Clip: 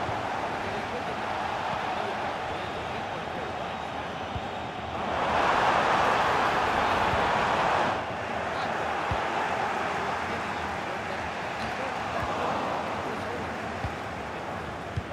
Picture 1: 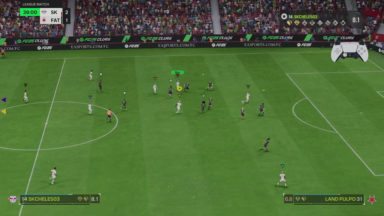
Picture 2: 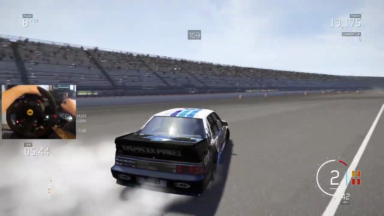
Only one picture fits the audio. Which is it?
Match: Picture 1